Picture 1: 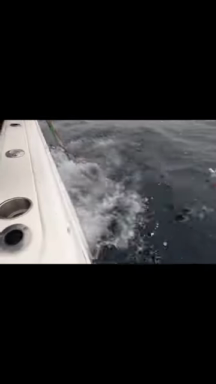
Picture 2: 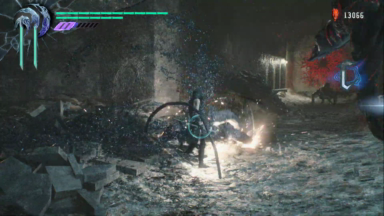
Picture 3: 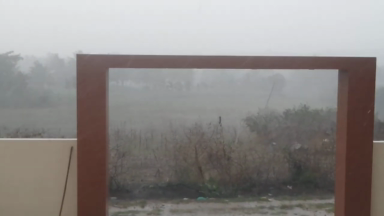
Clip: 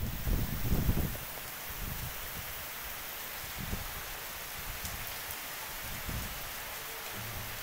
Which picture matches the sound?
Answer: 3